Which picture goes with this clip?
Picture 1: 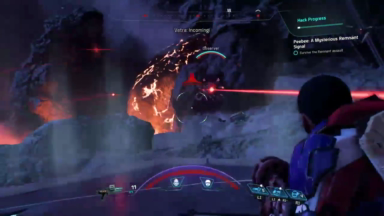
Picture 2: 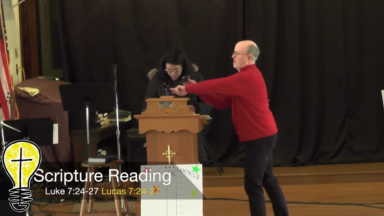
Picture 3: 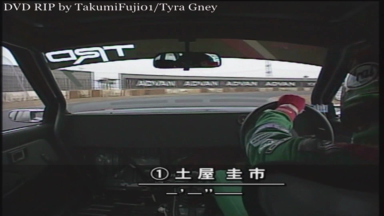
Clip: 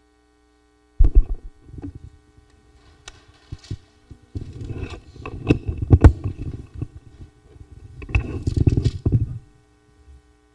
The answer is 2